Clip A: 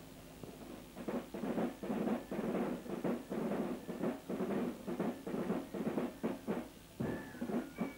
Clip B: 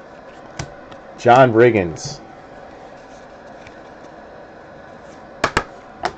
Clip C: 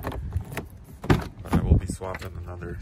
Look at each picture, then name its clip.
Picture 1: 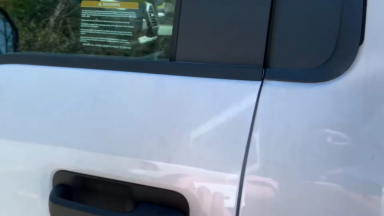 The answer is C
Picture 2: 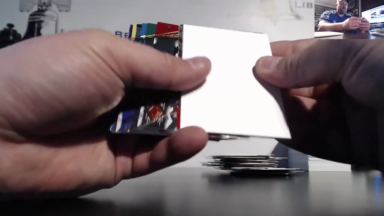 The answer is B